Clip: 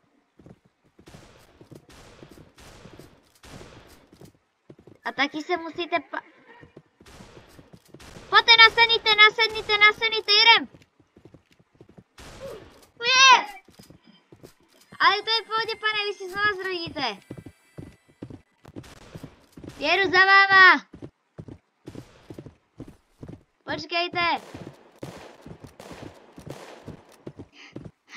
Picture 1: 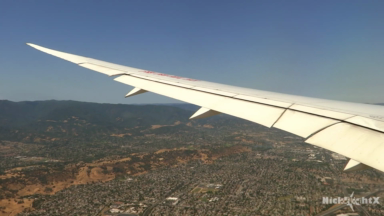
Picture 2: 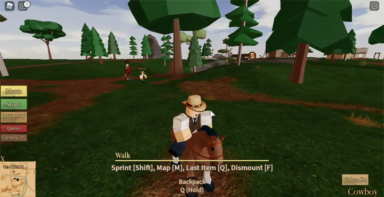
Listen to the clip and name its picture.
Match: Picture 2